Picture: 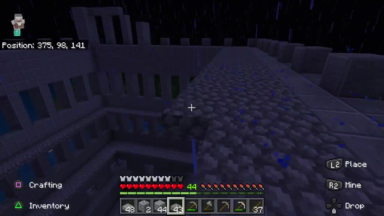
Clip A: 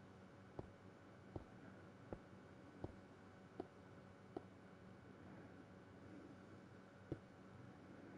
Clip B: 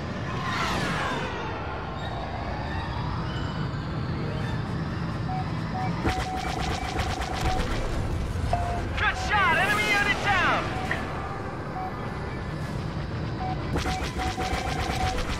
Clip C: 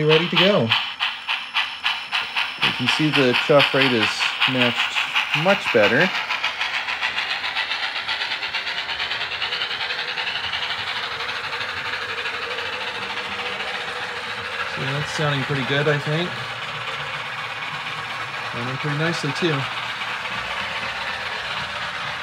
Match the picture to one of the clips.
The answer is A